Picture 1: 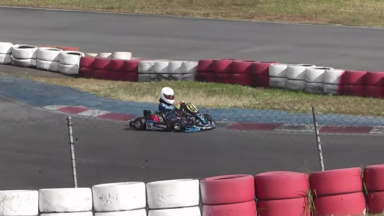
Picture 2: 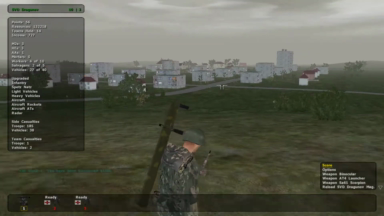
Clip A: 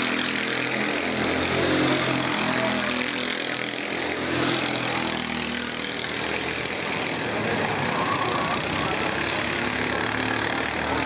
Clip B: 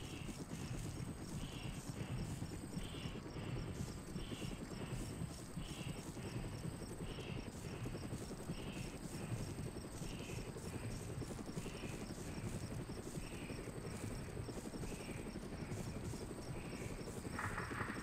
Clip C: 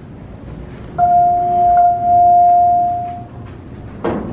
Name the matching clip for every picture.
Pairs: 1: A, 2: B